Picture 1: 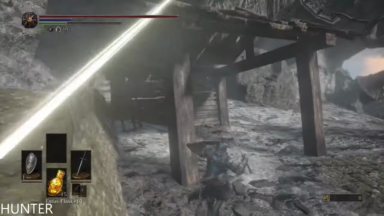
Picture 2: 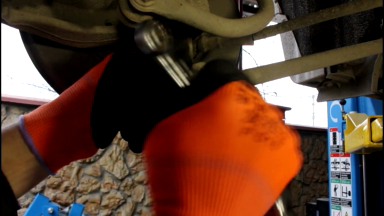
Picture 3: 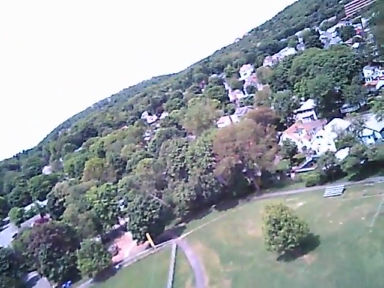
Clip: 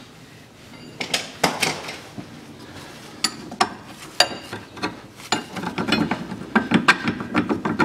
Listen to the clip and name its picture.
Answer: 2